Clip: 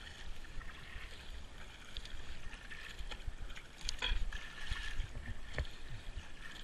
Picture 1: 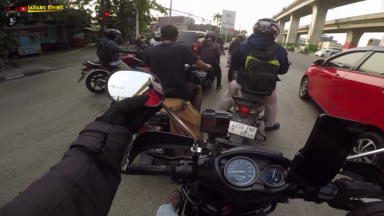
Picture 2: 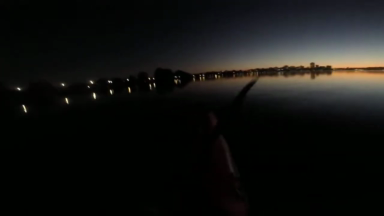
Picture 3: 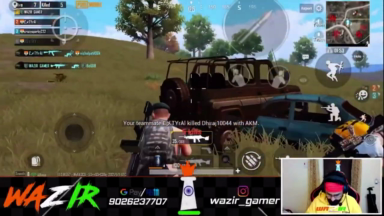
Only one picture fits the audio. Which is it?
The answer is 2